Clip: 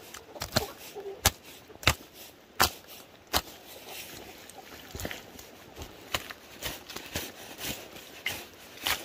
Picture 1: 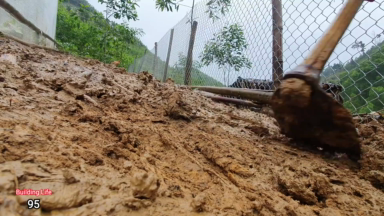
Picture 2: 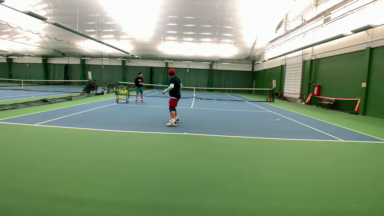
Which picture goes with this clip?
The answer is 1